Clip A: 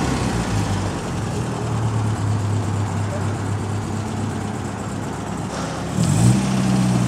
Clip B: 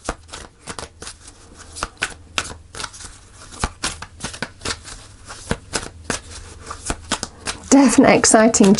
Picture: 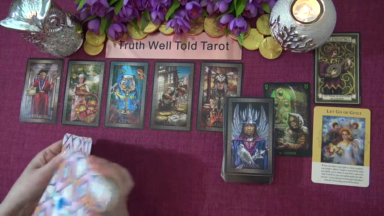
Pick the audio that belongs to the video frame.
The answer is B